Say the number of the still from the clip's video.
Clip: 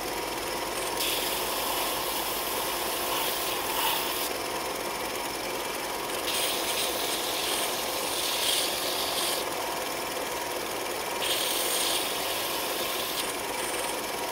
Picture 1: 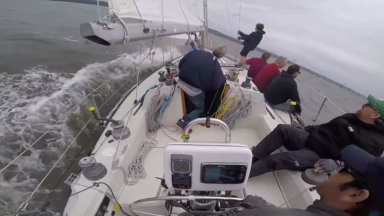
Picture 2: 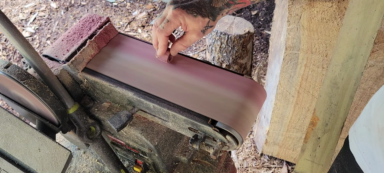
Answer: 2